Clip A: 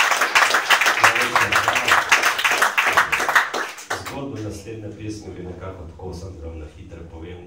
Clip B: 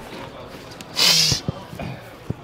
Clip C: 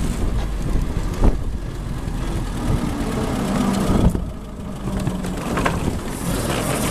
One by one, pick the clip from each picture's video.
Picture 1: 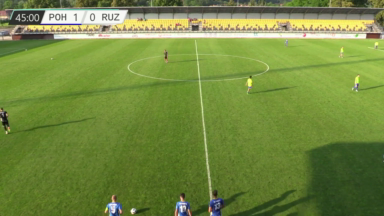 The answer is B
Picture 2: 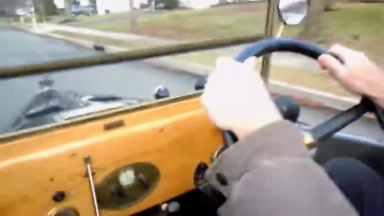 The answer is C